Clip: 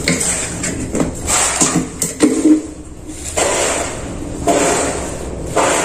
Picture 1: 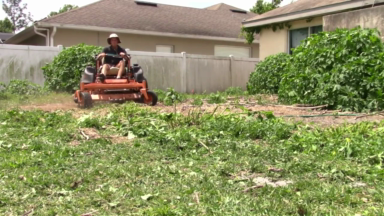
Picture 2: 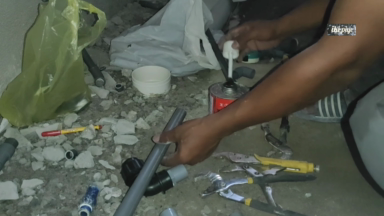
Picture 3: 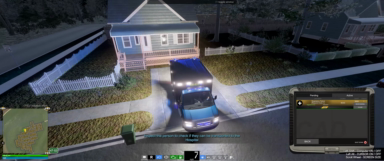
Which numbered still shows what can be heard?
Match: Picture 2